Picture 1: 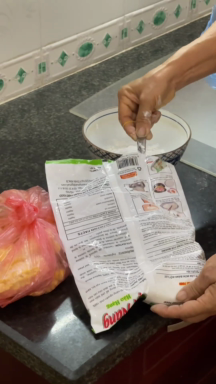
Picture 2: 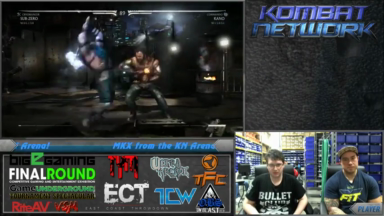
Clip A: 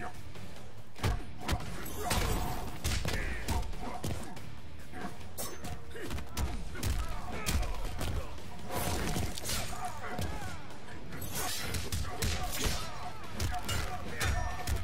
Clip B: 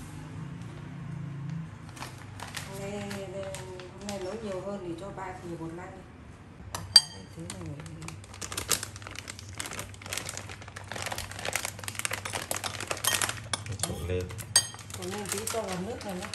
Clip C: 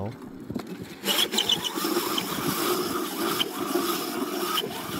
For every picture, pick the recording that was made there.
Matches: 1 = B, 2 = A